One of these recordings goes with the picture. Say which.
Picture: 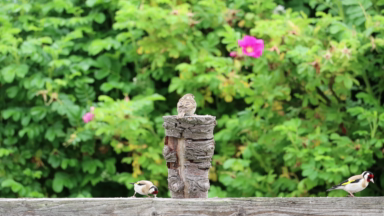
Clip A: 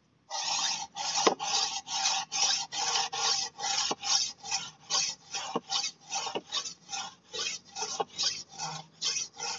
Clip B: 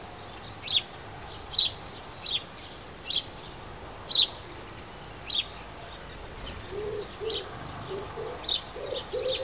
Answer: B